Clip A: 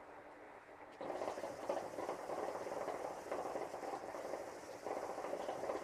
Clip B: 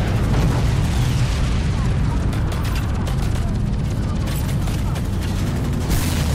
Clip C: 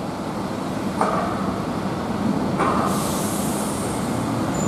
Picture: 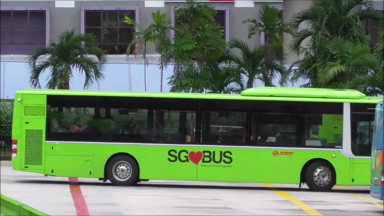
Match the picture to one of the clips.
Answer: C